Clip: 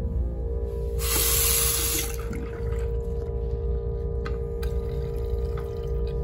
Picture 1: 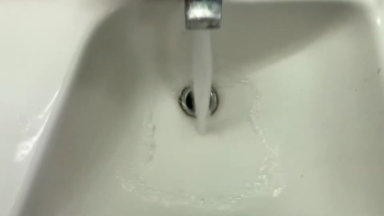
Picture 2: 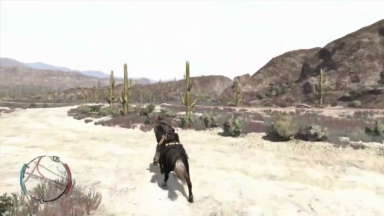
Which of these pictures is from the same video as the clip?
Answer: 1